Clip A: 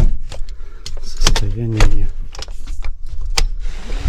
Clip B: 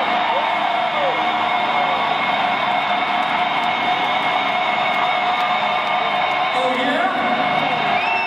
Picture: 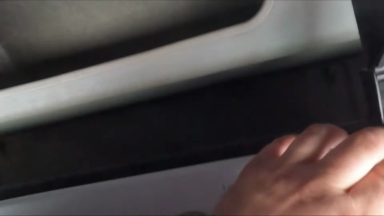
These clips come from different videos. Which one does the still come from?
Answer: A